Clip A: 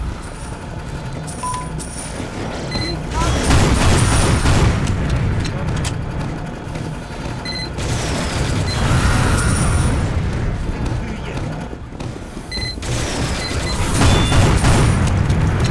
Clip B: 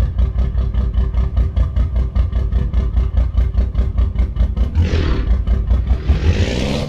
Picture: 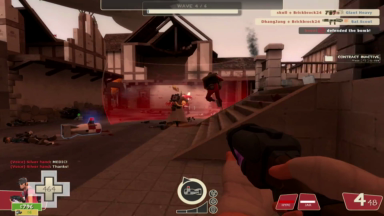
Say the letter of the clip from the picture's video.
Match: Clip A